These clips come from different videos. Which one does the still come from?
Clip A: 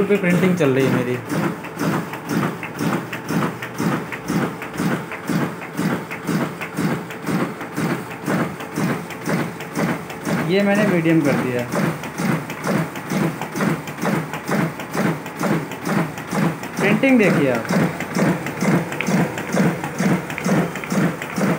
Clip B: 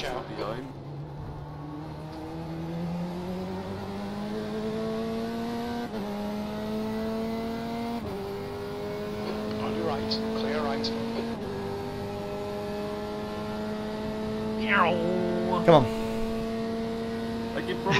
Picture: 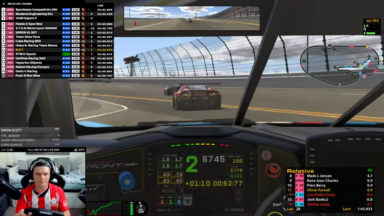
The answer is B